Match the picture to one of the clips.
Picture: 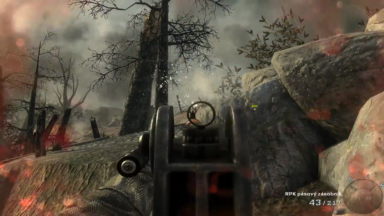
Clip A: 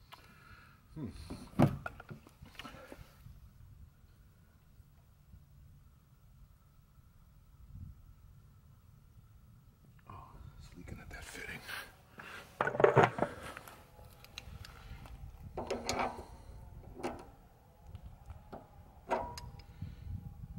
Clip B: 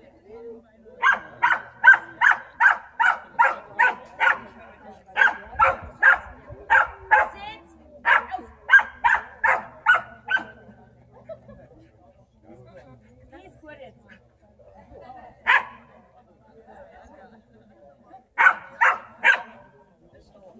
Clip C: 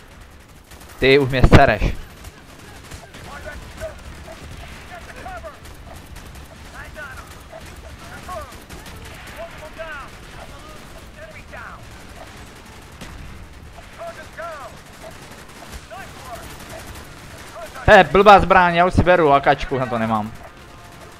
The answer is C